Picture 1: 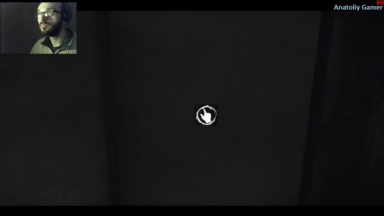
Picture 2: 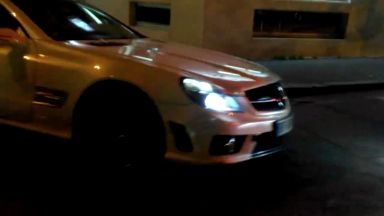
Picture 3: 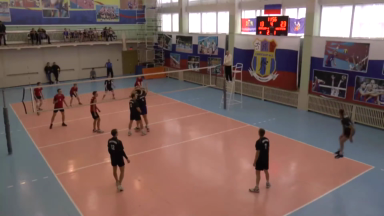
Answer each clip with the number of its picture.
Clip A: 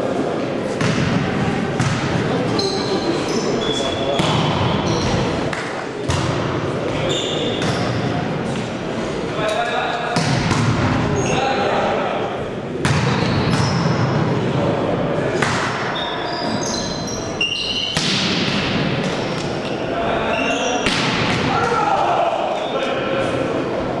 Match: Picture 3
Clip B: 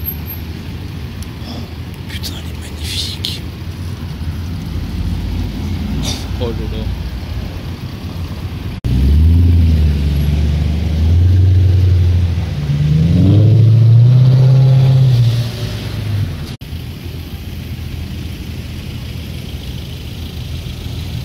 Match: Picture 2